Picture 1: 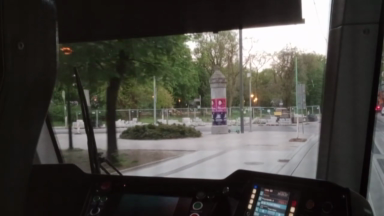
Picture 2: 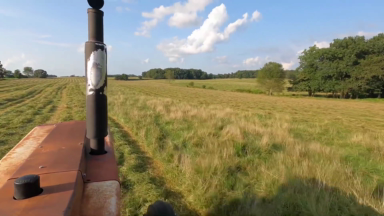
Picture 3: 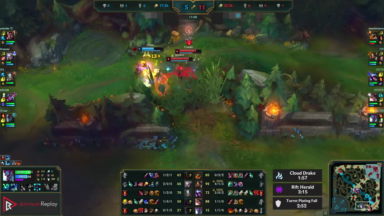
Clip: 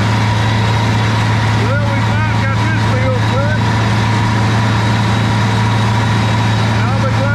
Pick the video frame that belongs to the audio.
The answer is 2